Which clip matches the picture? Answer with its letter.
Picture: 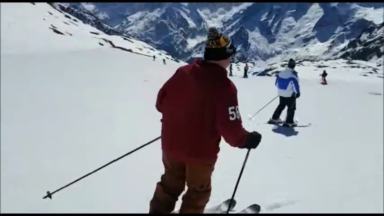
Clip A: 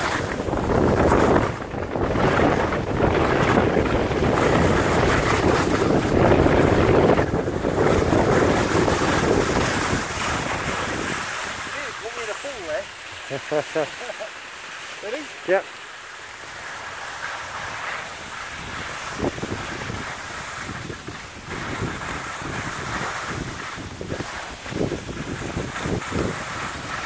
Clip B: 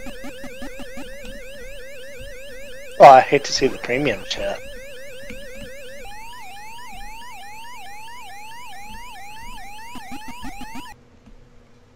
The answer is A